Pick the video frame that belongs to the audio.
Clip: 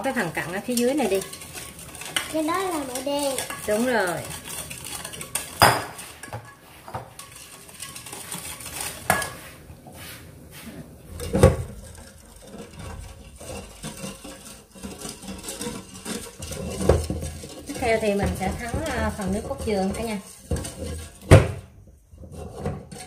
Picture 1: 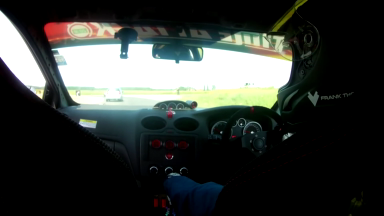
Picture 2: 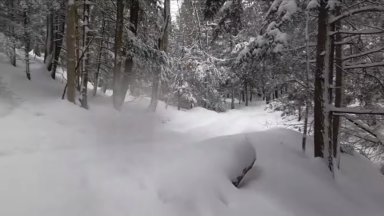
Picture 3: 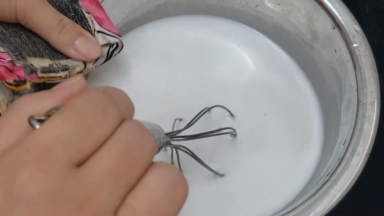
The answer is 3